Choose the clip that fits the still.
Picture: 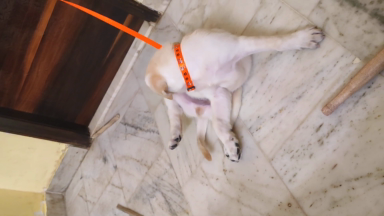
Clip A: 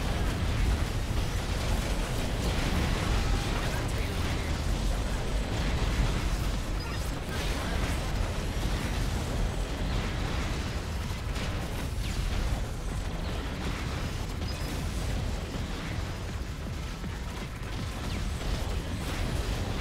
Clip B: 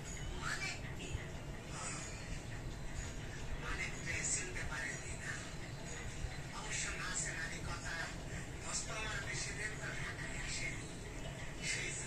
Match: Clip B